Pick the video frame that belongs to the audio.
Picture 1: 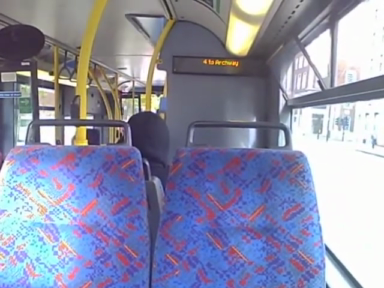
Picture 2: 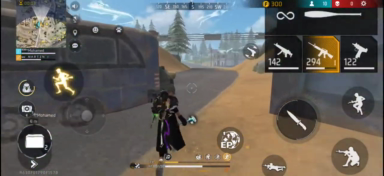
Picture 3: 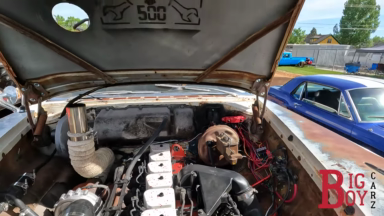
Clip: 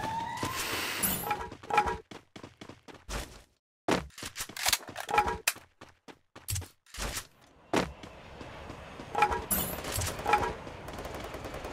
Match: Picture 2